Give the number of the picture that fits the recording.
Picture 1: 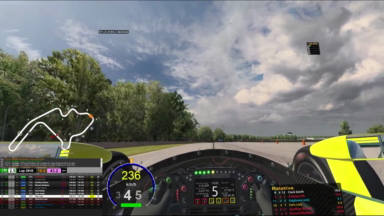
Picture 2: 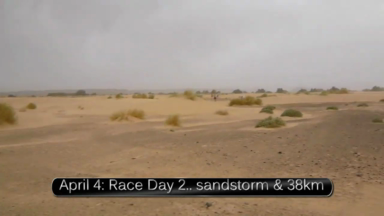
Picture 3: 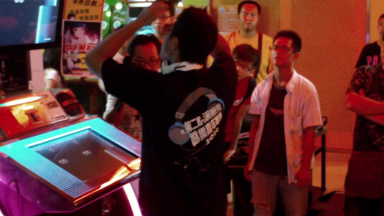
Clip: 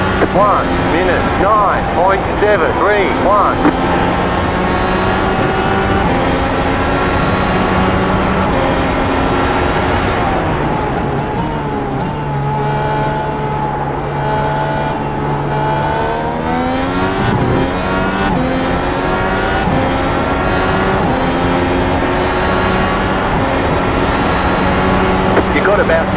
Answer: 1